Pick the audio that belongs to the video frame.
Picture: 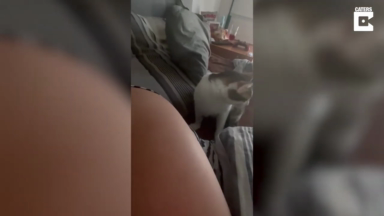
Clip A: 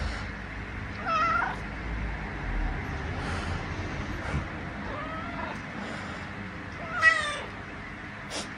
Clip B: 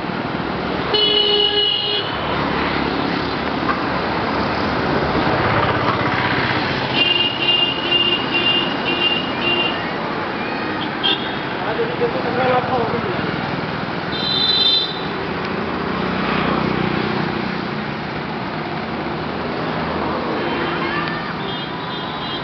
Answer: A